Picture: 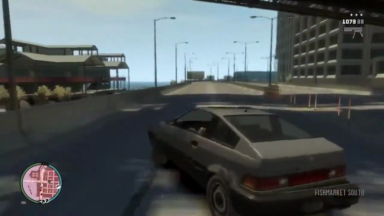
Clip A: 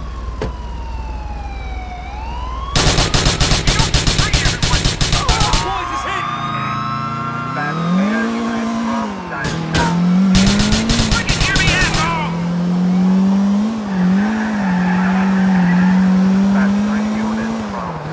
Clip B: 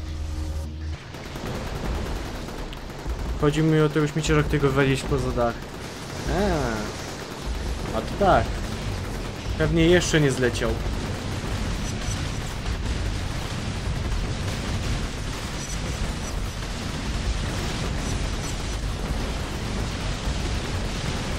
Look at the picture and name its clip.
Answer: A